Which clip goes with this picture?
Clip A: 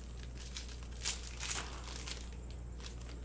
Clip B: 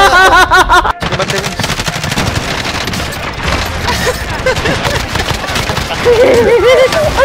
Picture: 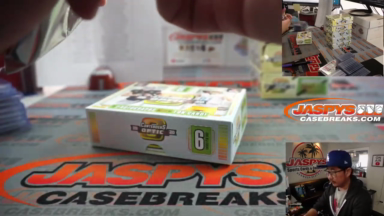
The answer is A